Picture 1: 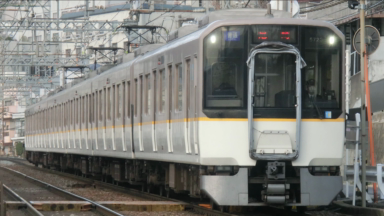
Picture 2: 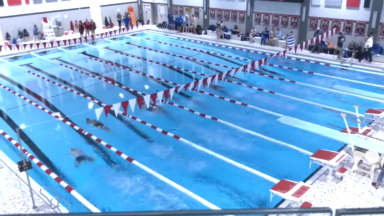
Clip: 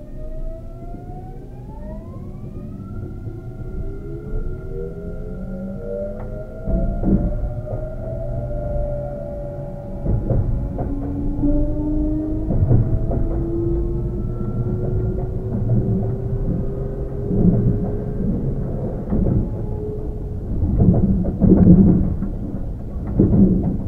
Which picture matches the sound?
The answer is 1